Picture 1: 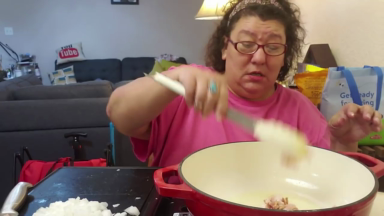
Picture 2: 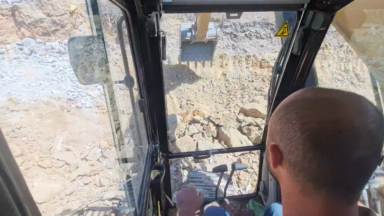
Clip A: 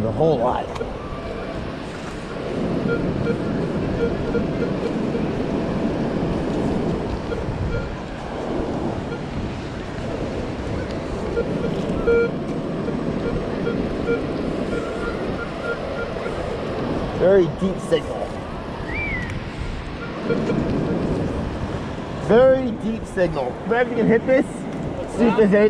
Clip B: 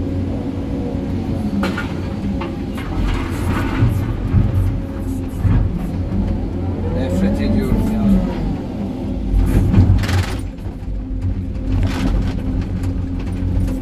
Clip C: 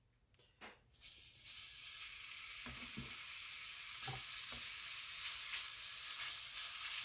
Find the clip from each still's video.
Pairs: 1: C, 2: B